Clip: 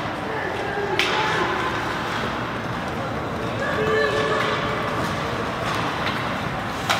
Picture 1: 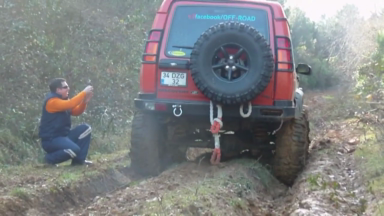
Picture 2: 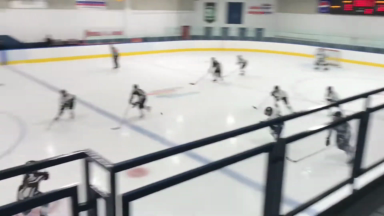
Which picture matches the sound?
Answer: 2